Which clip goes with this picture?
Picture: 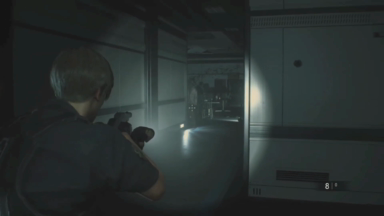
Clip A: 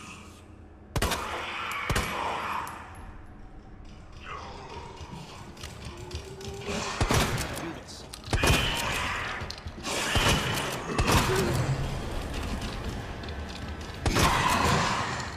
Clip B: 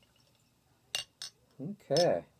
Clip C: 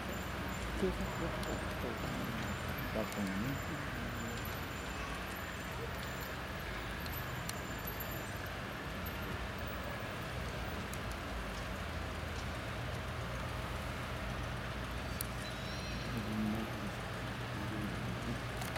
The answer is A